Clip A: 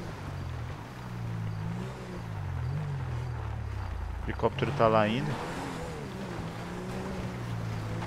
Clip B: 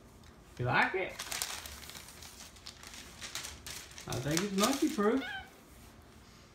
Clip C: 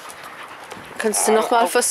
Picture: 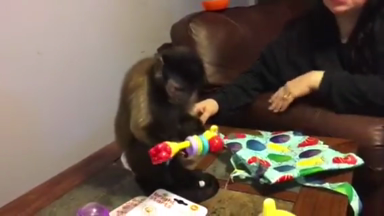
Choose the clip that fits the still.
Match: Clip B